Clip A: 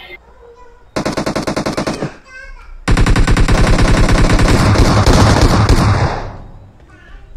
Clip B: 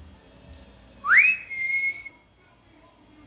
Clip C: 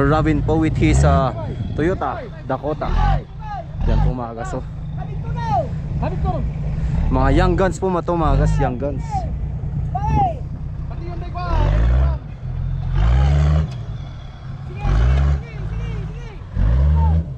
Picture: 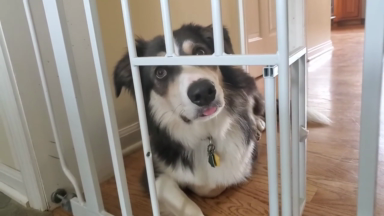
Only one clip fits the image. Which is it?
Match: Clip B